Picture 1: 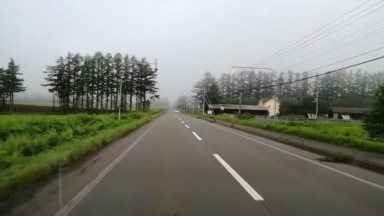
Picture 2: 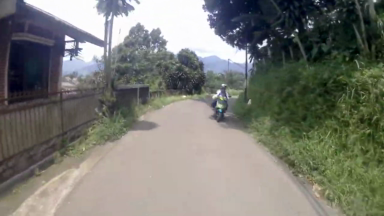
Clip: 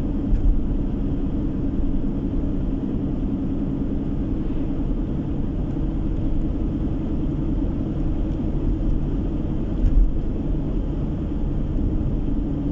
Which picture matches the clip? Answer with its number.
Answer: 1